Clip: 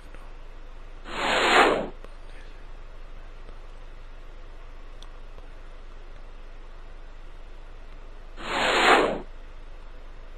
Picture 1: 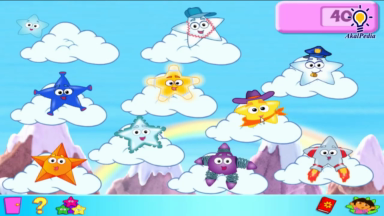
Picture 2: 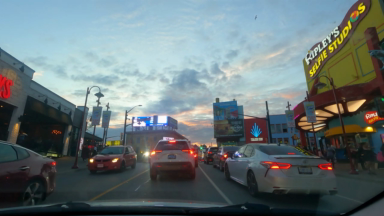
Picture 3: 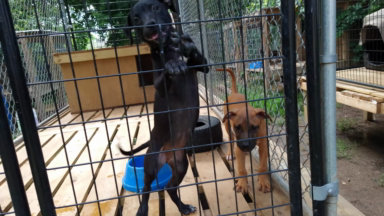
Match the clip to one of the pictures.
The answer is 1